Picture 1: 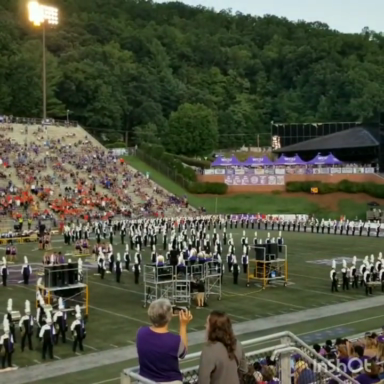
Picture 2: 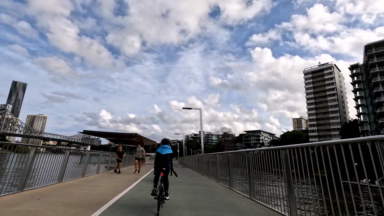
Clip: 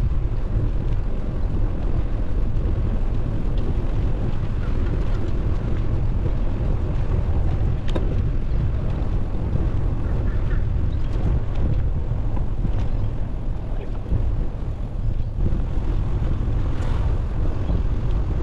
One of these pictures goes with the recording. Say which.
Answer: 2